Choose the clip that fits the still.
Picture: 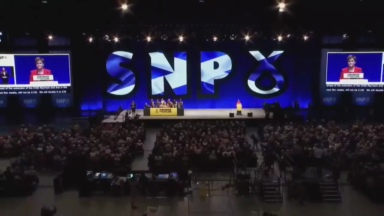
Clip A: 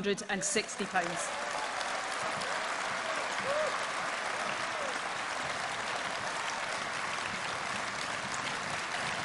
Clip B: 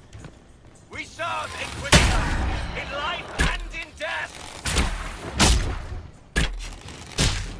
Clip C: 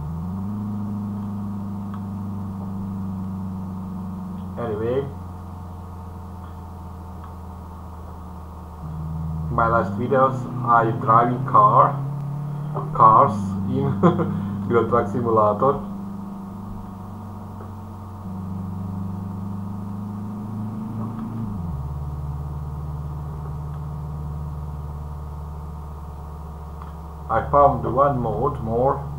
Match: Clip A